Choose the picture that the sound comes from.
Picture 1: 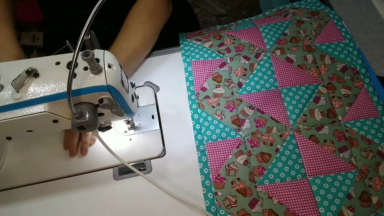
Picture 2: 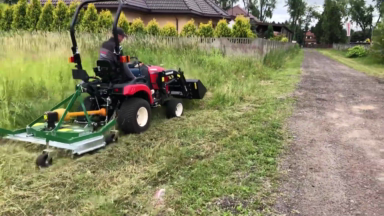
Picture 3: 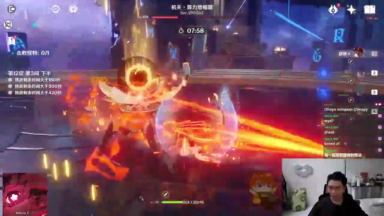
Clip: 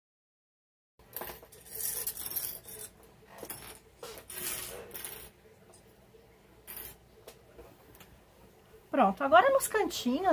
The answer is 1